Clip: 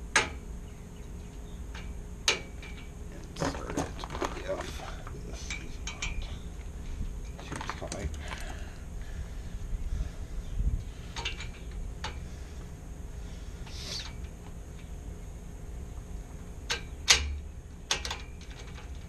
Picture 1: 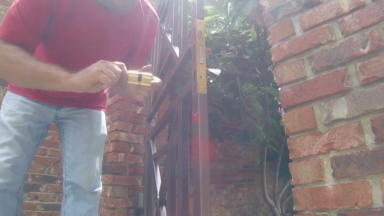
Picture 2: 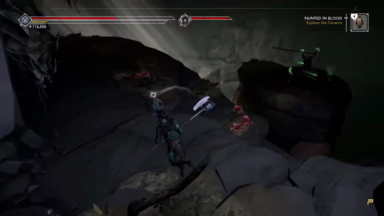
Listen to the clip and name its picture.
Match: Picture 1